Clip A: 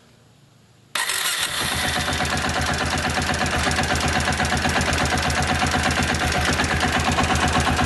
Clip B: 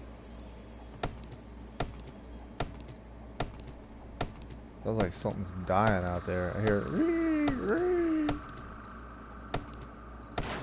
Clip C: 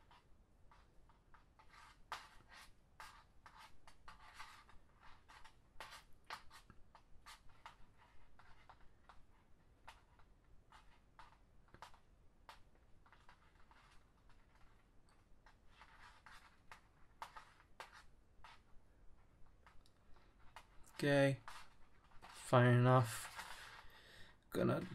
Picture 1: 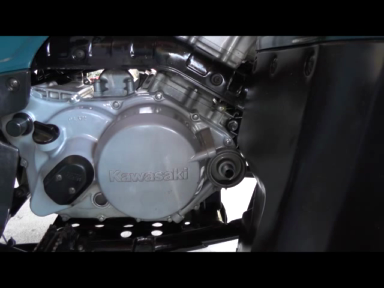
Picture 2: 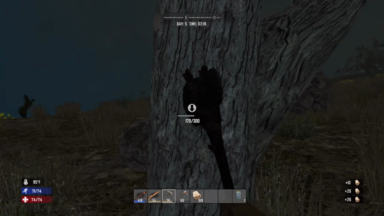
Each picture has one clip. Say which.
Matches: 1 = A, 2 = B